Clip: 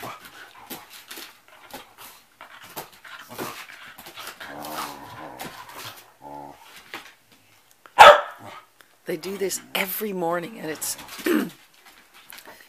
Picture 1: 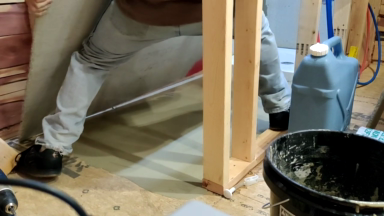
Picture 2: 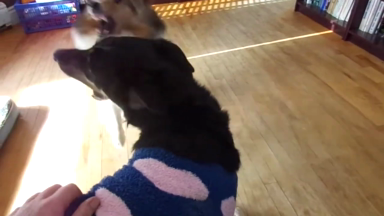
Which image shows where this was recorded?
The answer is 2